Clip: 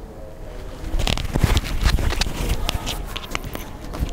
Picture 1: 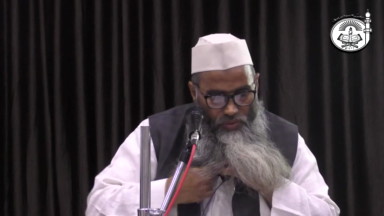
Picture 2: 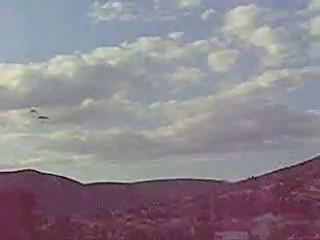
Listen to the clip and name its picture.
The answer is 1